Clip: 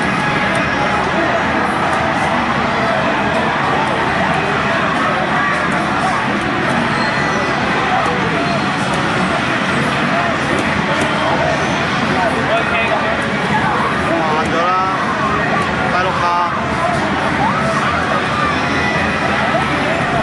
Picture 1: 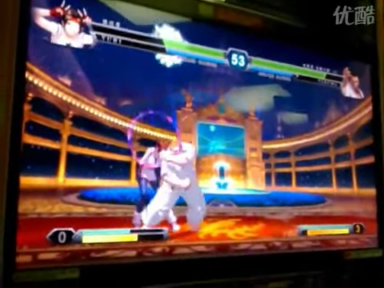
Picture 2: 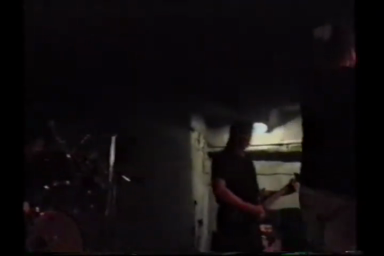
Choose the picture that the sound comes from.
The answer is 1